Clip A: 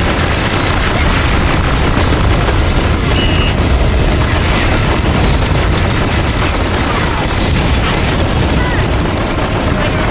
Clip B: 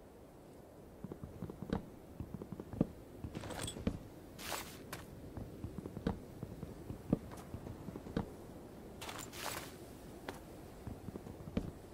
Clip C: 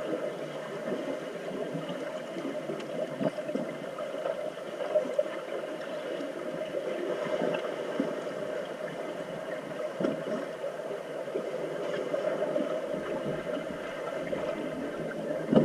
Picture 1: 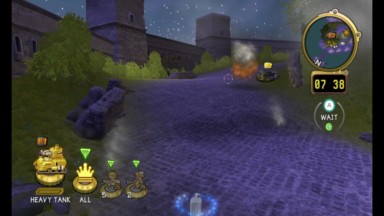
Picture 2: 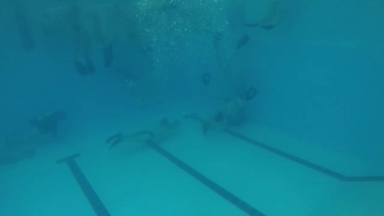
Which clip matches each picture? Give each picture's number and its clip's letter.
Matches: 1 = A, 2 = C